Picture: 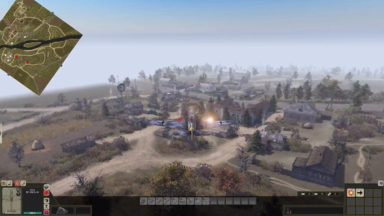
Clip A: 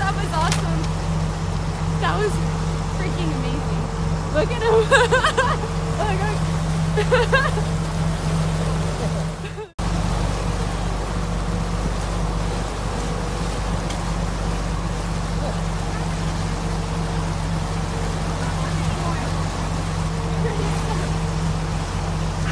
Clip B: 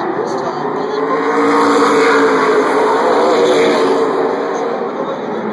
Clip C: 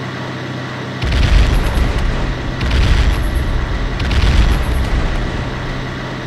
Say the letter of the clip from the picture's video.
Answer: C